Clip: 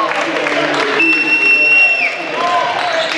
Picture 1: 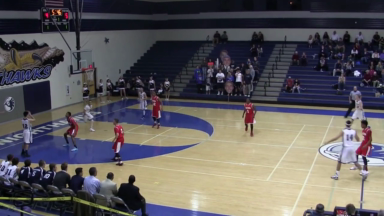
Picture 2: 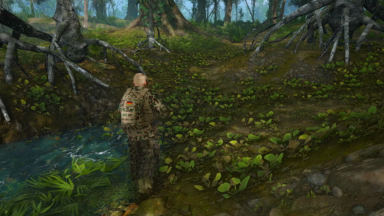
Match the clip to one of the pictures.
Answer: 1